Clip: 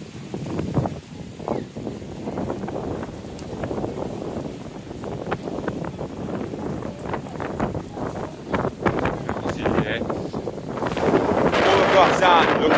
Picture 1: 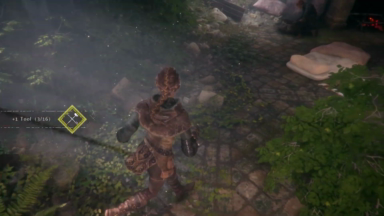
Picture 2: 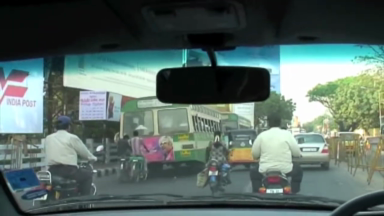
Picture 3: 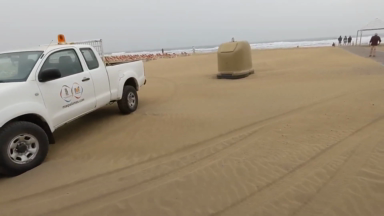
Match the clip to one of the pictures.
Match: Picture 3